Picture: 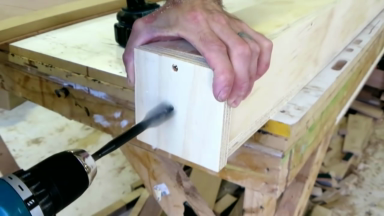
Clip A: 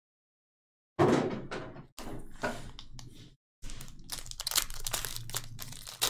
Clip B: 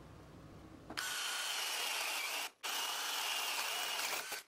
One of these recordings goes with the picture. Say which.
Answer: B